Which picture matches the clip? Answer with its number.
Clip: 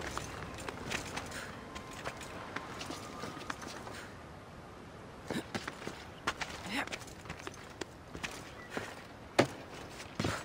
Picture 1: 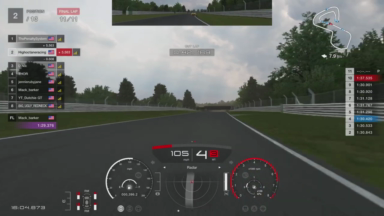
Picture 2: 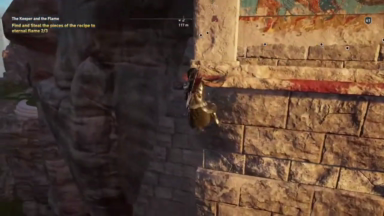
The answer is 2